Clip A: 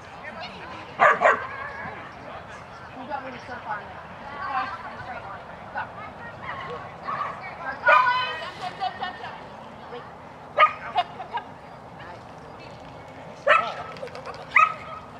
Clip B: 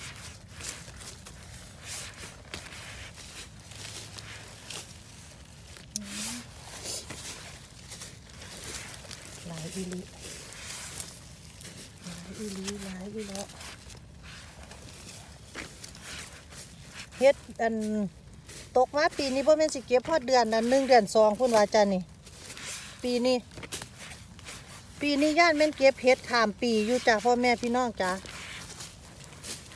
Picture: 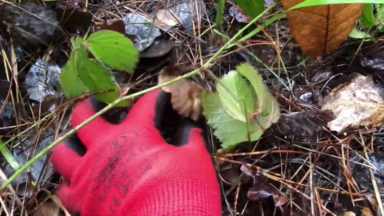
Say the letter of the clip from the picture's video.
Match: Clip B